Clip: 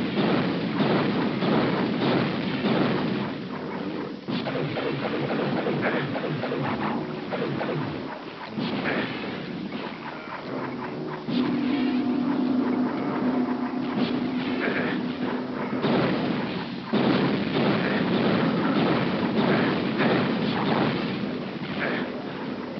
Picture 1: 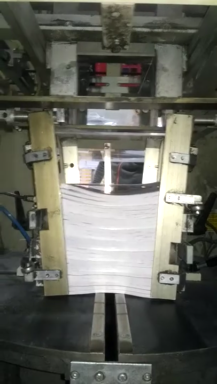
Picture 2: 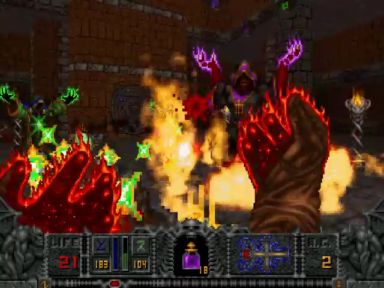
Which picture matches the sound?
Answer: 2